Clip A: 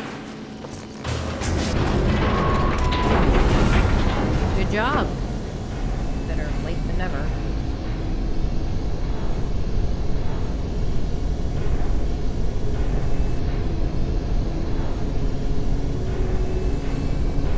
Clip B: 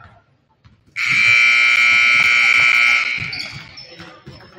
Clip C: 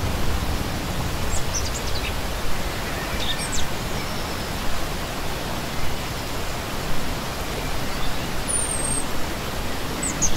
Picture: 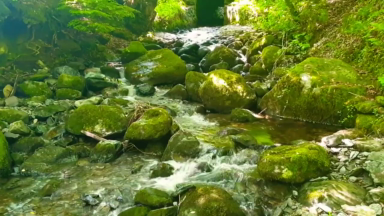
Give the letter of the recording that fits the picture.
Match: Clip C